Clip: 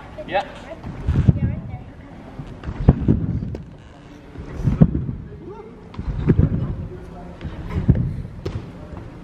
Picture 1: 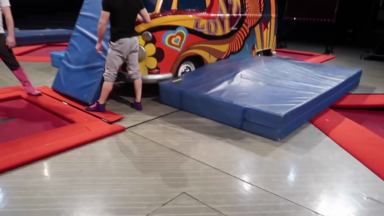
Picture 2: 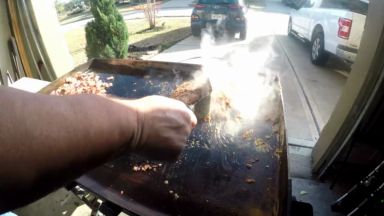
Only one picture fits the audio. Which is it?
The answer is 1